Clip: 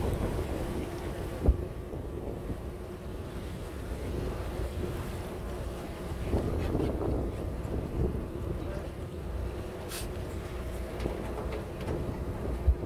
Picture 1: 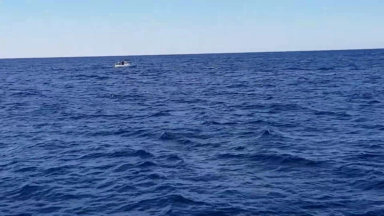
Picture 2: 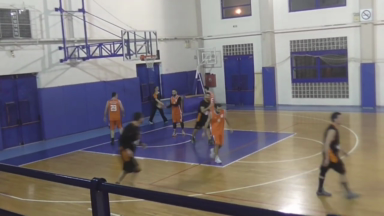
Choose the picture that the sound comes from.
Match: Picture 1